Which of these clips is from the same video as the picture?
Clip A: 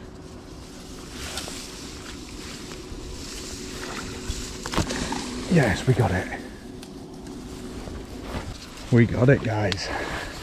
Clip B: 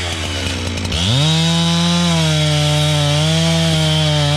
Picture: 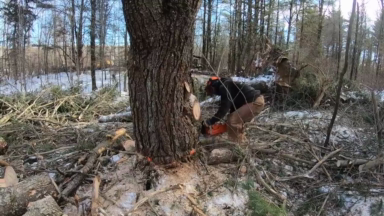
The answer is B